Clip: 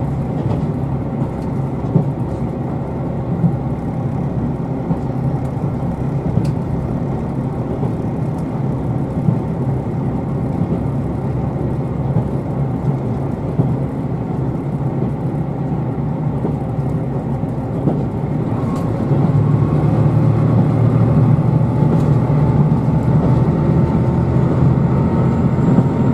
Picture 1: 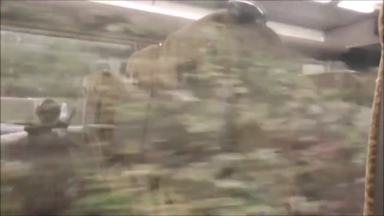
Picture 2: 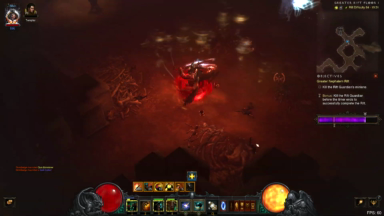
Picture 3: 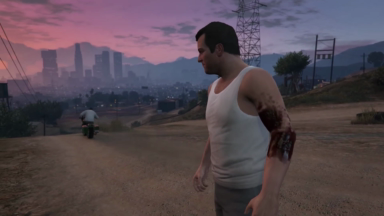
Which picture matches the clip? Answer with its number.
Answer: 1